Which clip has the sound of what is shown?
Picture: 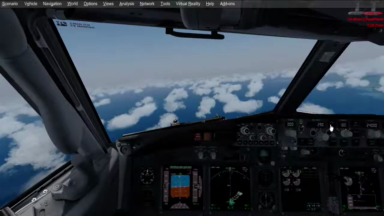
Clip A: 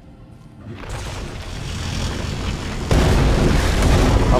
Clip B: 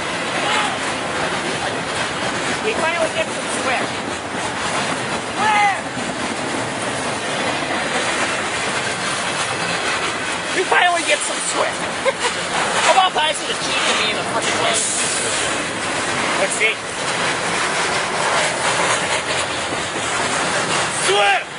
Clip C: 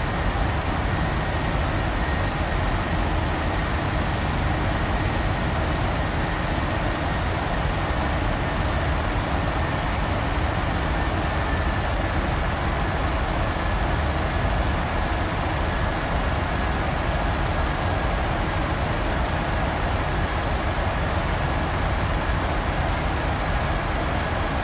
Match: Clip C